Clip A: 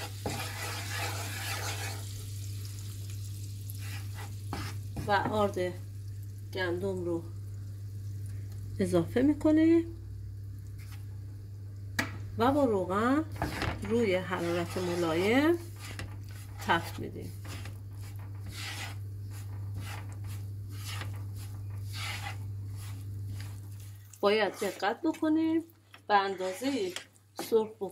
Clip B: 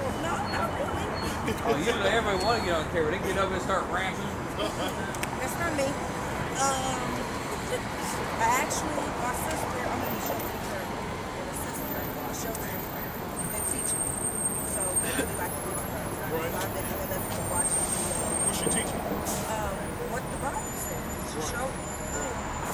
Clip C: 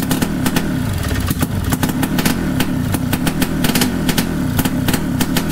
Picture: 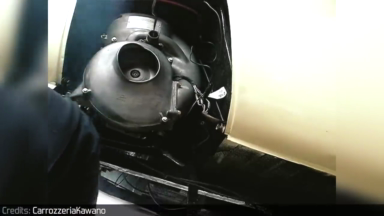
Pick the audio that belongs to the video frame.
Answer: C